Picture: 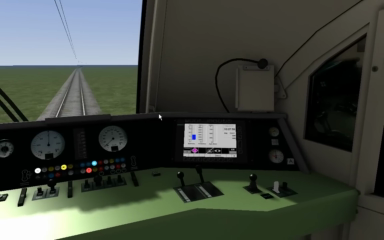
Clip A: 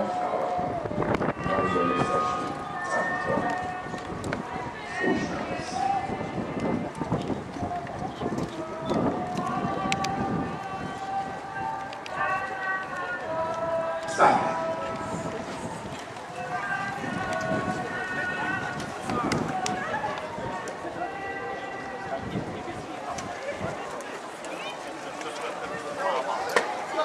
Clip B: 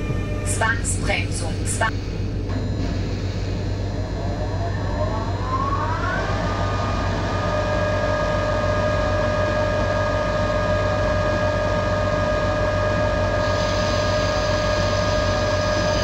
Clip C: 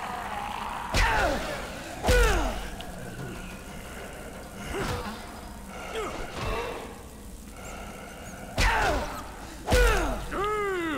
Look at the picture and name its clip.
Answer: B